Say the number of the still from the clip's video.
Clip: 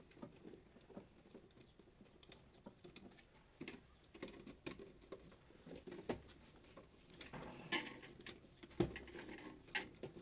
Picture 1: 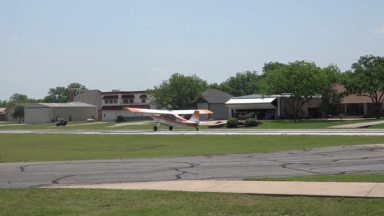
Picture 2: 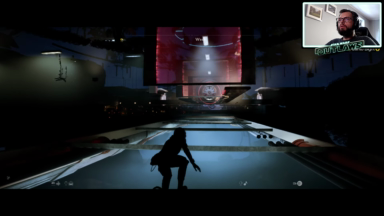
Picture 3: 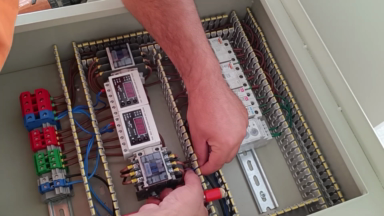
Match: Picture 3